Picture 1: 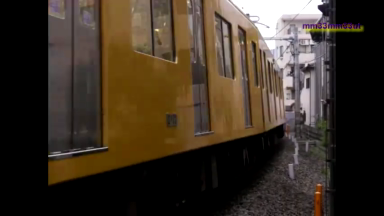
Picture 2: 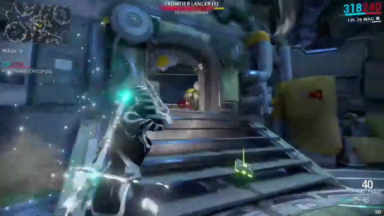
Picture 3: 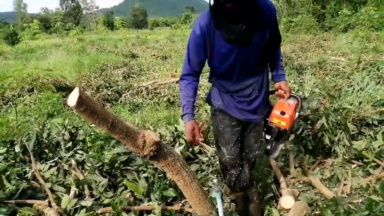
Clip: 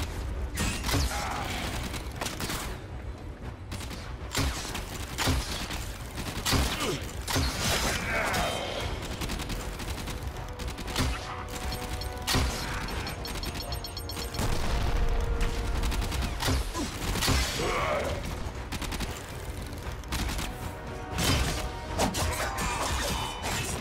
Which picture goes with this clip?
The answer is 2